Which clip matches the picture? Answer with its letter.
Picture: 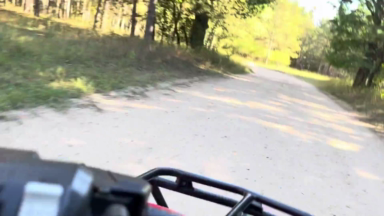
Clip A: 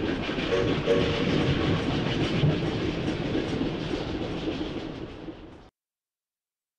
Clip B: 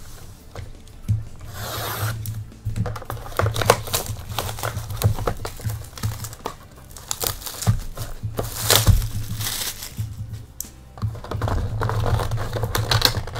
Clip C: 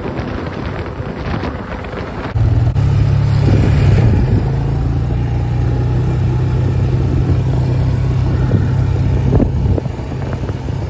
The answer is C